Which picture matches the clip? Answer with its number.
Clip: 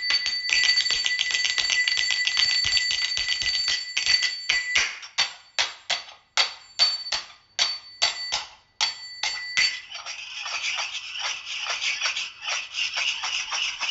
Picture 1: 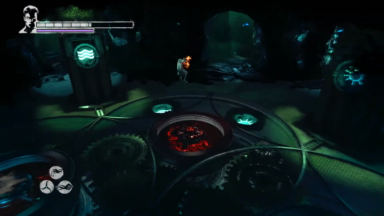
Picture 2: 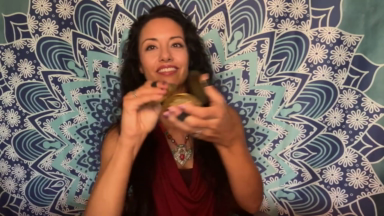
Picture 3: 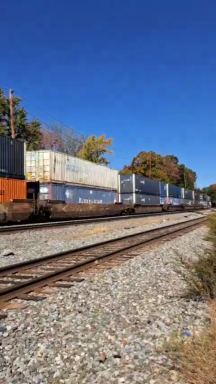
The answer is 2